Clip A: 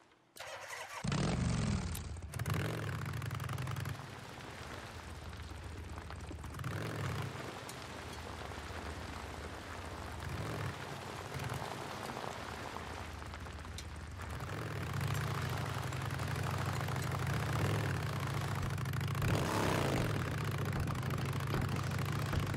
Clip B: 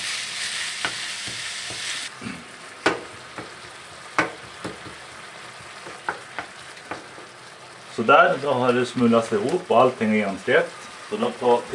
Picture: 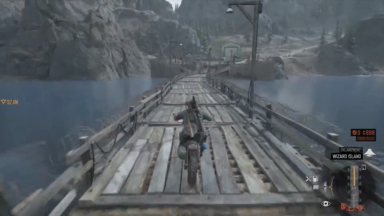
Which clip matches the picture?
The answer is A